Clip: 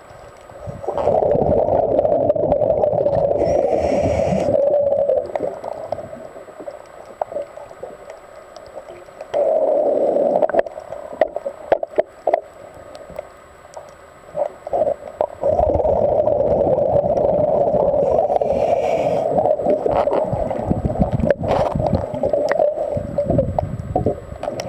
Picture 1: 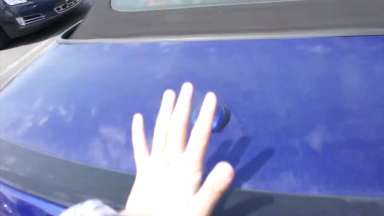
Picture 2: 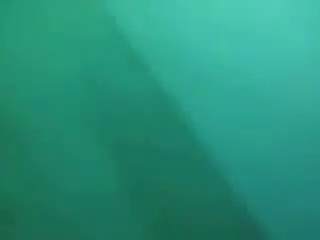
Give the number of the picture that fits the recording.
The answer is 2